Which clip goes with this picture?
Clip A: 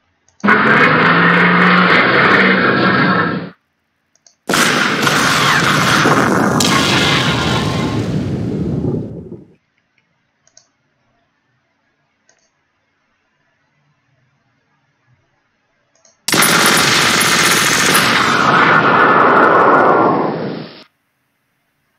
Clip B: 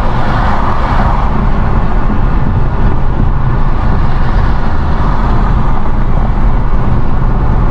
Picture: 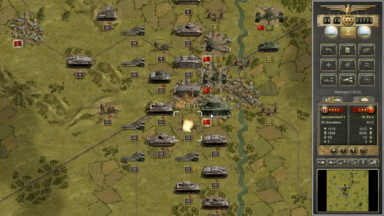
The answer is A